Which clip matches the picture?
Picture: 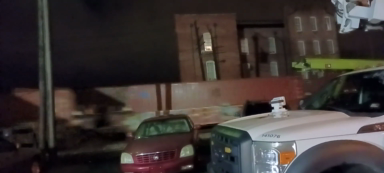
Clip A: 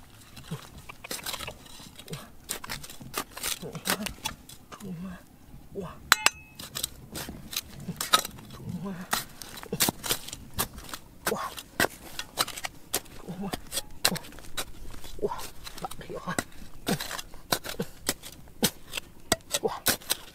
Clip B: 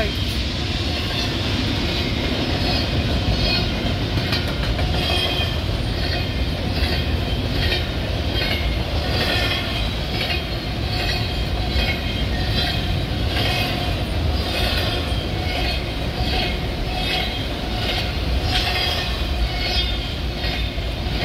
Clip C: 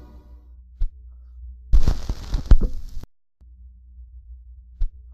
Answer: B